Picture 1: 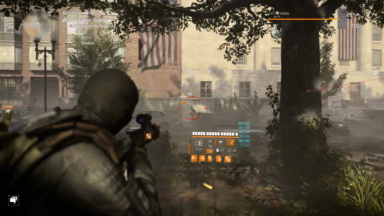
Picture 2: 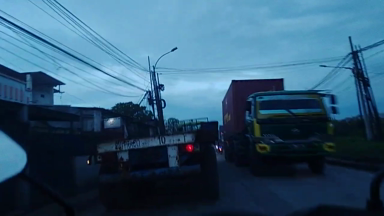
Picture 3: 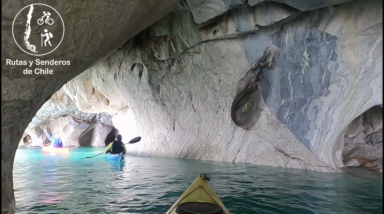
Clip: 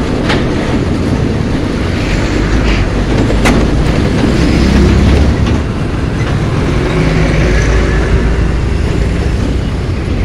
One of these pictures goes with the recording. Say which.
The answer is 2